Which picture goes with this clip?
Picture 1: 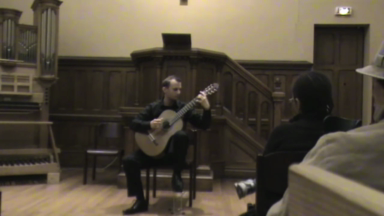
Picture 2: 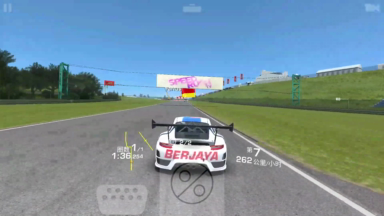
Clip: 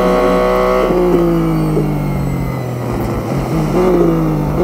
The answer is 2